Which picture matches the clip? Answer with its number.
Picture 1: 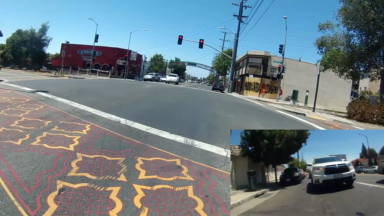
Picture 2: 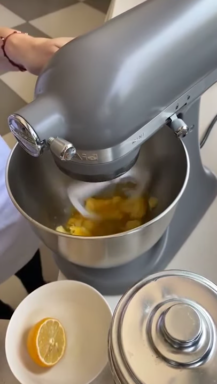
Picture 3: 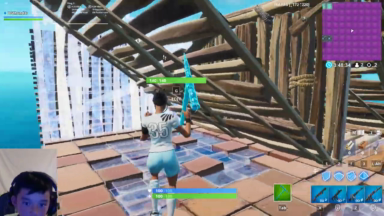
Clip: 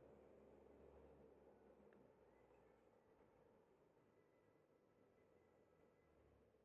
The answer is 1